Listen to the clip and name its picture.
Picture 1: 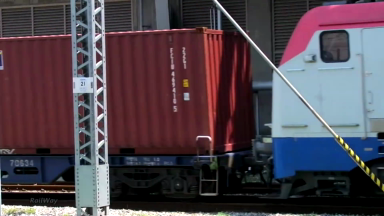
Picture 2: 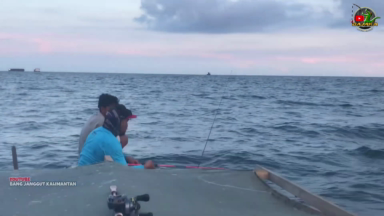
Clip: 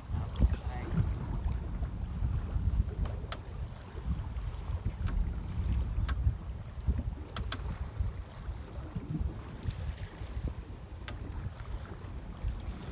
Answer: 2